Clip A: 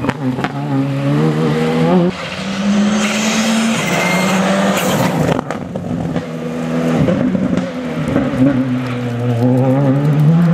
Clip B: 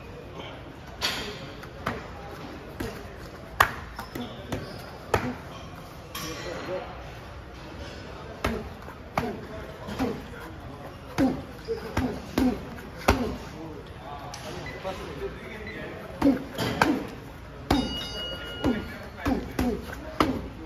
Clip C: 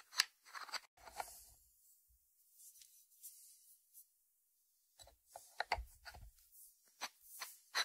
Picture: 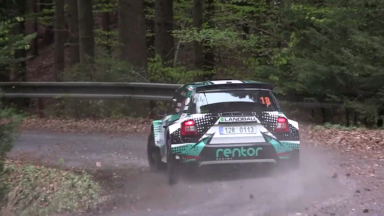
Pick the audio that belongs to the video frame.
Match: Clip A